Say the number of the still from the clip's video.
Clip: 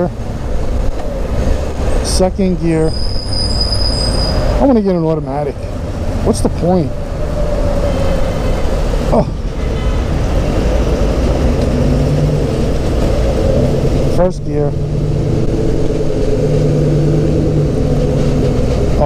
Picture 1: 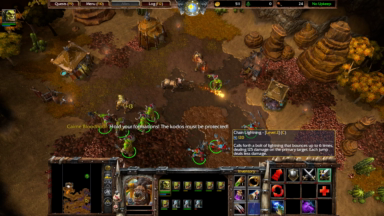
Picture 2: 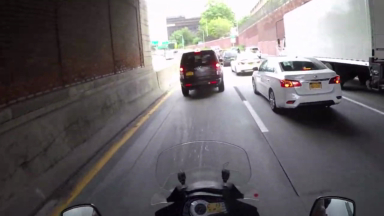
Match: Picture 2